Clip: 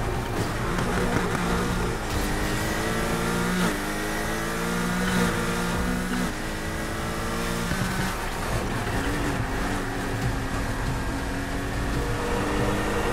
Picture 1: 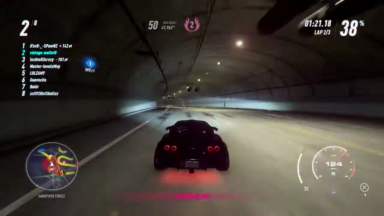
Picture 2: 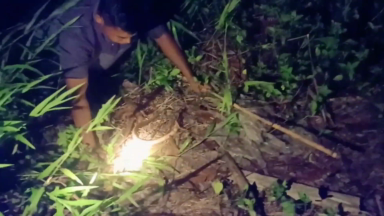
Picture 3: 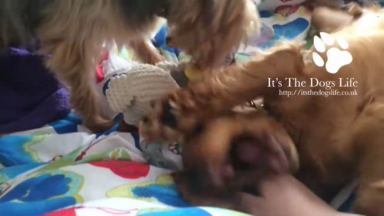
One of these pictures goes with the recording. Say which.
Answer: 1